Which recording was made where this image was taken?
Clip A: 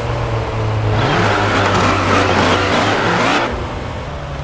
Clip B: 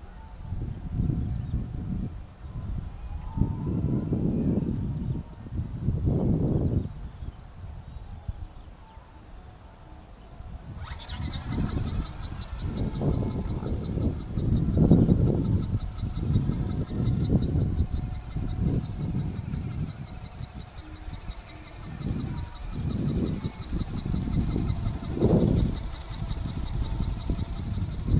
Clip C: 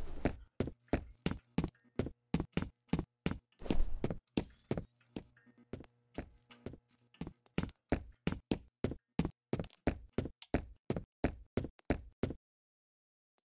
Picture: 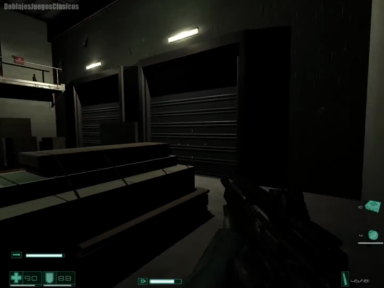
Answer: C